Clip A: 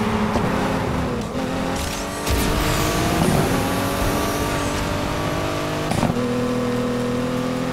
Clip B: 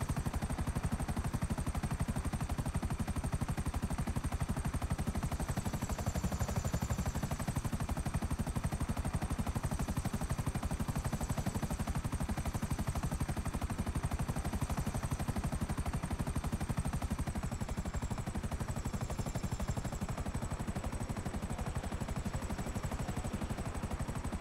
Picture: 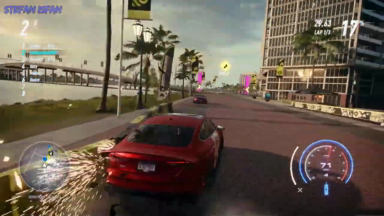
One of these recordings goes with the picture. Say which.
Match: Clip A